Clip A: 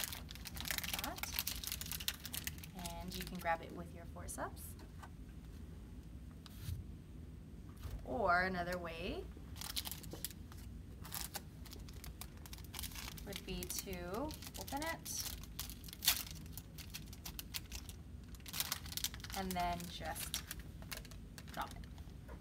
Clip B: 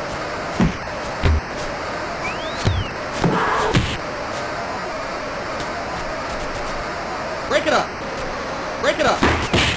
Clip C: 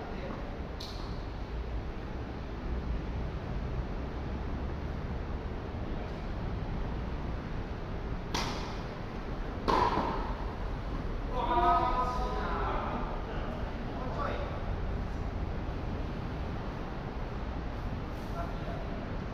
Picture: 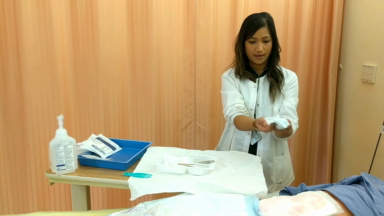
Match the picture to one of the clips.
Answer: A